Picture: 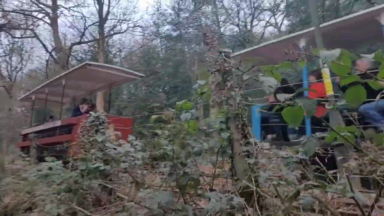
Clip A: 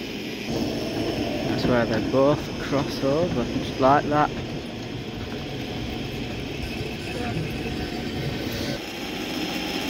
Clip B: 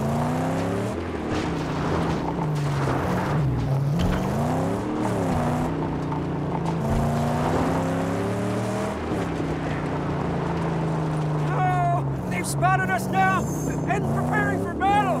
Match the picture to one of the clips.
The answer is A